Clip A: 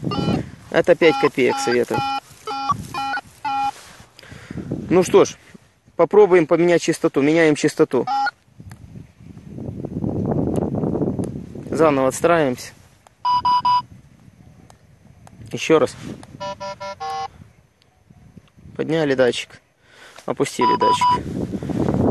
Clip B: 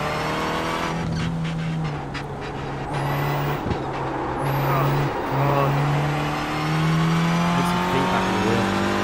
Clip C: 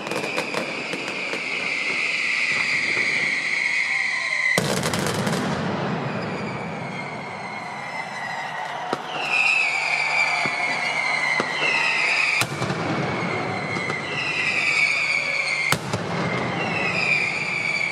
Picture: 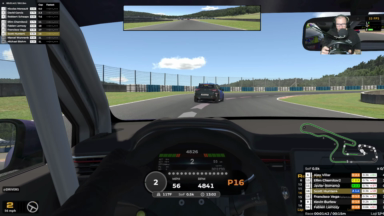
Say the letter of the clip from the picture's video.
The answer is B